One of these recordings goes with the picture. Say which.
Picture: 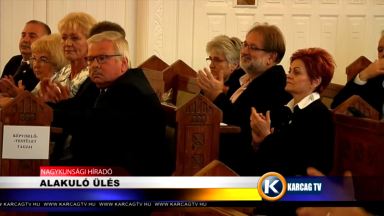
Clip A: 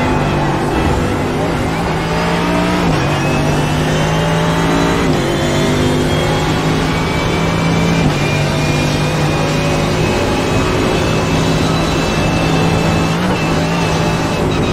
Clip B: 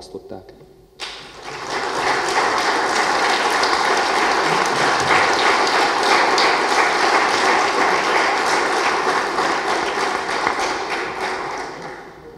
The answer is B